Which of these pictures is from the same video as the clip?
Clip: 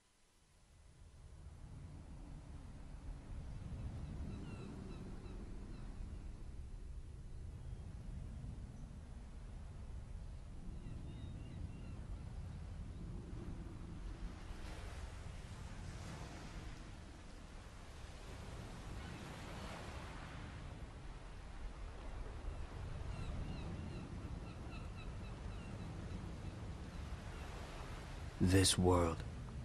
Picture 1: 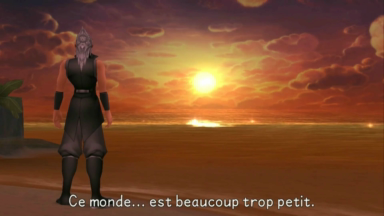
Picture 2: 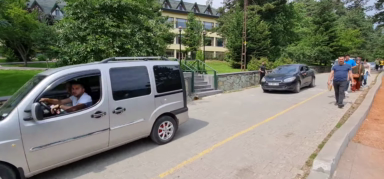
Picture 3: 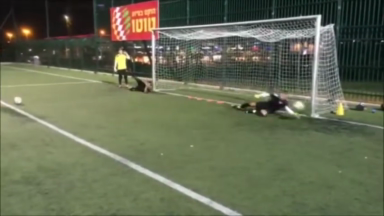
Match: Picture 1